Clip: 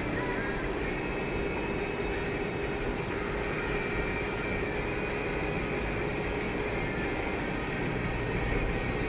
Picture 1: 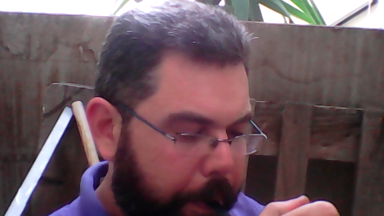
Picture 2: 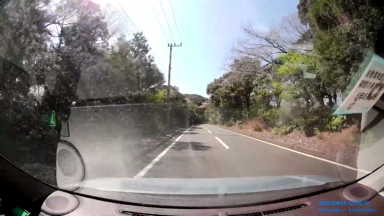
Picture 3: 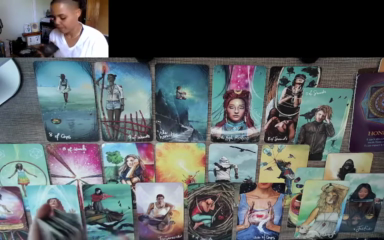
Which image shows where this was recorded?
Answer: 2